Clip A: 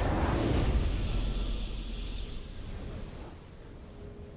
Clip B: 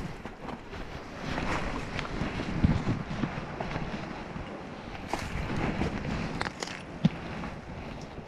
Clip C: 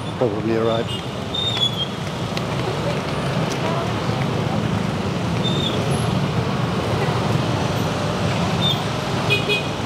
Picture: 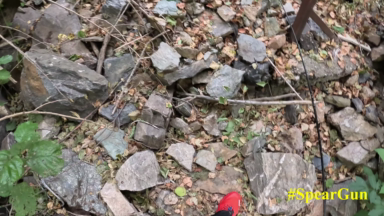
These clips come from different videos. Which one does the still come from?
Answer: B